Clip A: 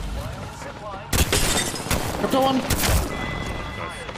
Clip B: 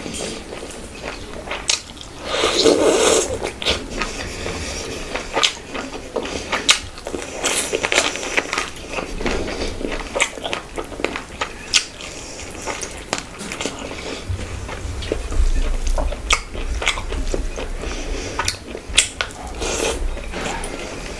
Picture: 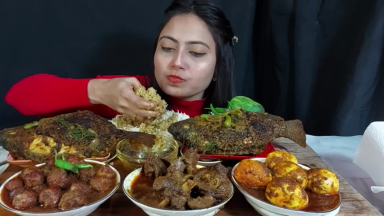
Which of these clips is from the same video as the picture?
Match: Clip B